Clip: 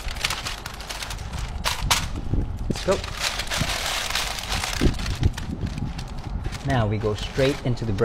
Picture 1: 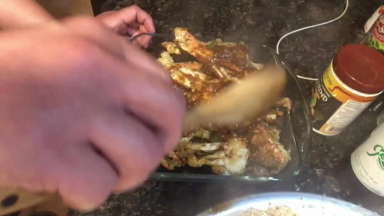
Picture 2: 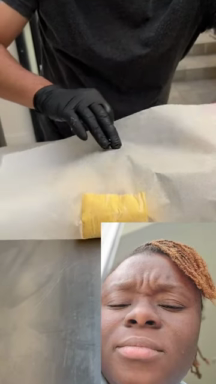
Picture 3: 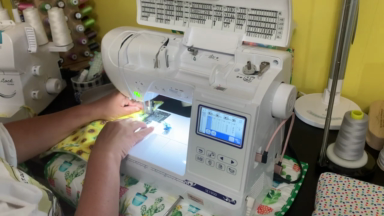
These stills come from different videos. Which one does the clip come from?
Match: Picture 2